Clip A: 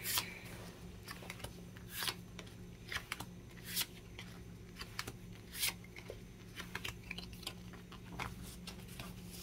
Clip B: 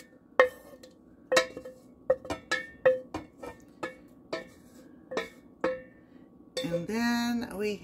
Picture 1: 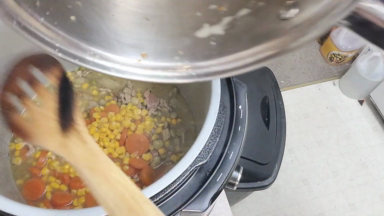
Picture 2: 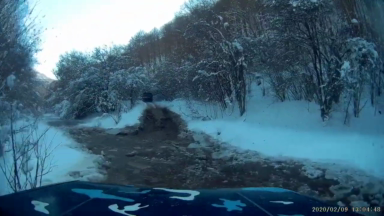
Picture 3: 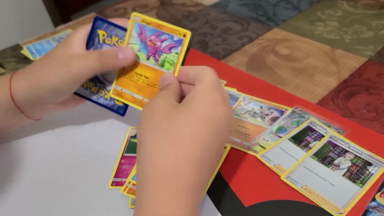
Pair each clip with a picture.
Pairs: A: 3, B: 1